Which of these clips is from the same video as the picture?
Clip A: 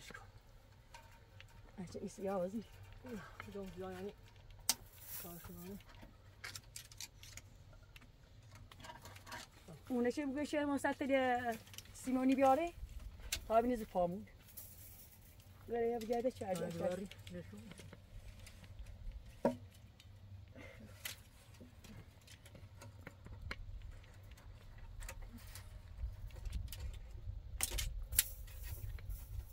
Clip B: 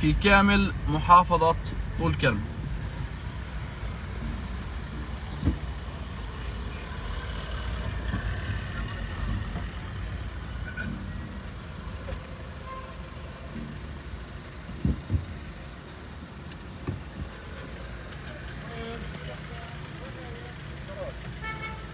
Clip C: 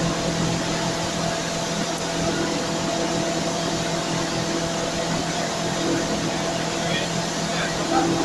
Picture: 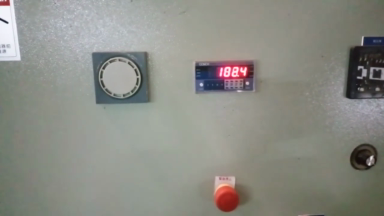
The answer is C